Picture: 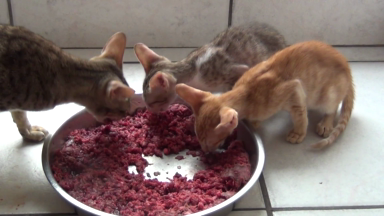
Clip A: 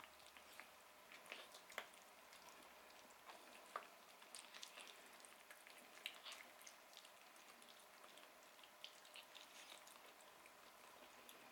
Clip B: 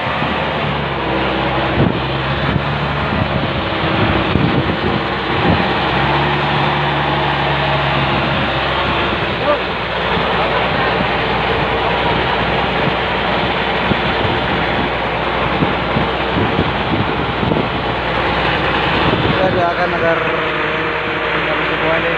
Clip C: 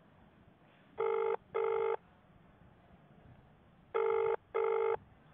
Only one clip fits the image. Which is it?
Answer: A